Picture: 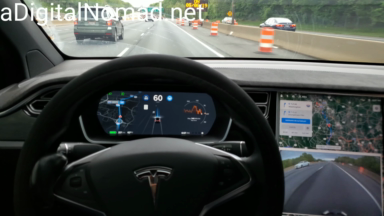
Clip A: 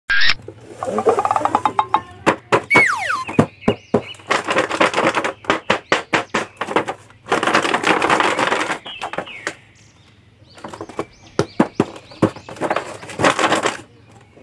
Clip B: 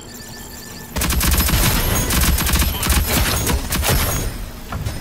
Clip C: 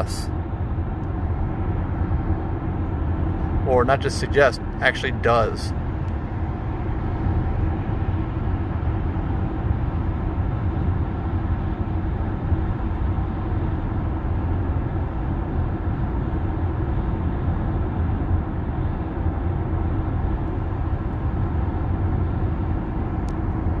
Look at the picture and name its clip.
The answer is C